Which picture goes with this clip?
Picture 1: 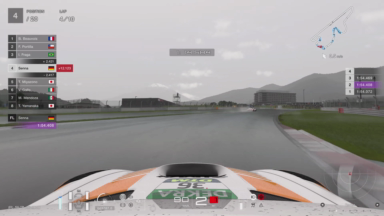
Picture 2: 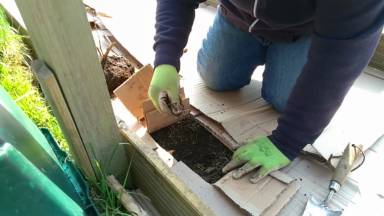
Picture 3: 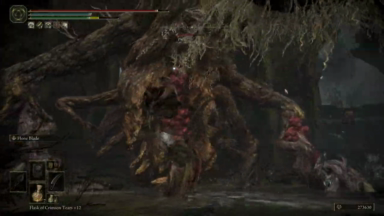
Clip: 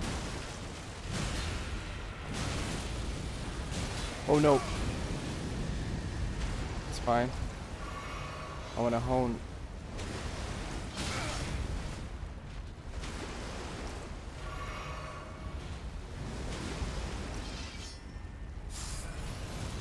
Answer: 3